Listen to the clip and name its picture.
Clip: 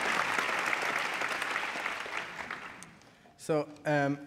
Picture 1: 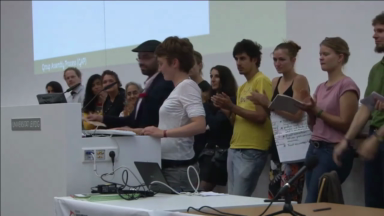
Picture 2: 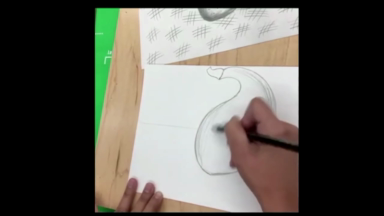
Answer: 1